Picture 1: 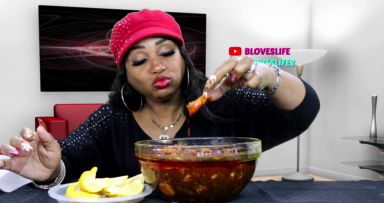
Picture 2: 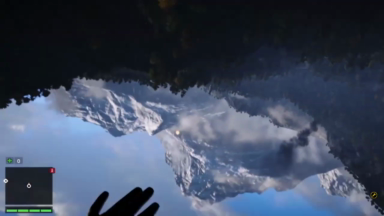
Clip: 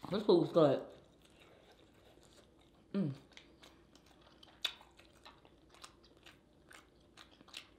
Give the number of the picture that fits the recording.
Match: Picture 1